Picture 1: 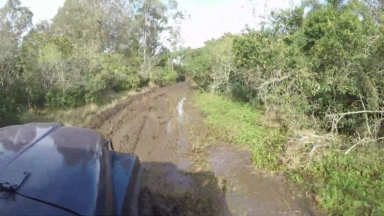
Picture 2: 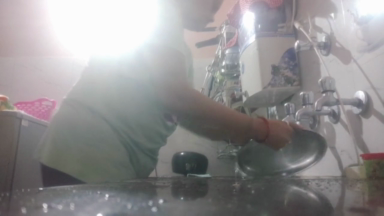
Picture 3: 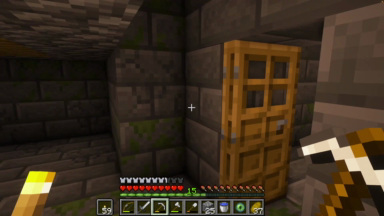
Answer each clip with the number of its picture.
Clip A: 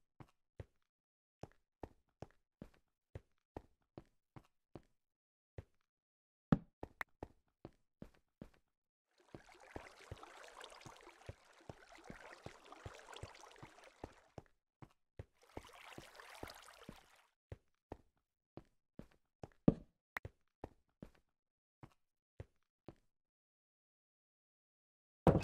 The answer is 3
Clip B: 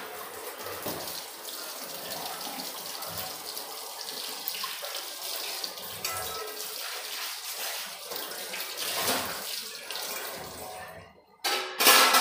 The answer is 2